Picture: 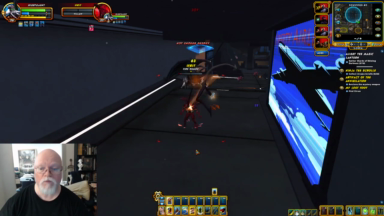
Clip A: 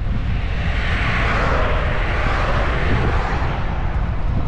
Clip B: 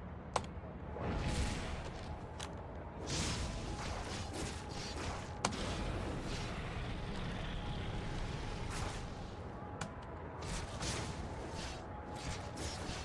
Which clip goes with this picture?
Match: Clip B